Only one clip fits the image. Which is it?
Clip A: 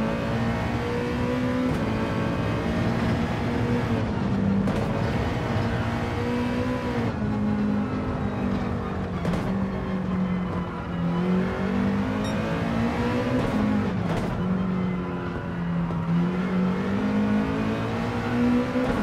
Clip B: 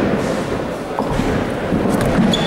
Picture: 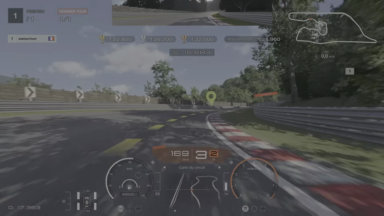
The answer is A